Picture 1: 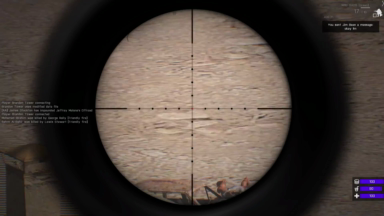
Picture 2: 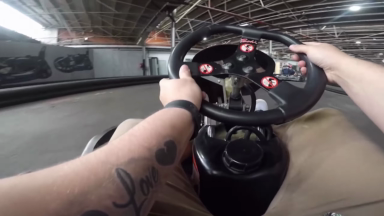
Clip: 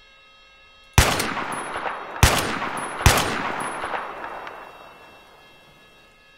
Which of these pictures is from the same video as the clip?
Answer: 1